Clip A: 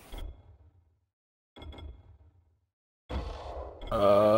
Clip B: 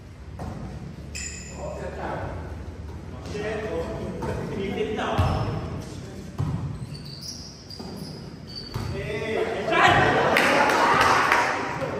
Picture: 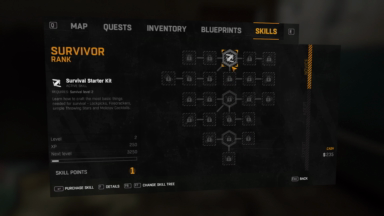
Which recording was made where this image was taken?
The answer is A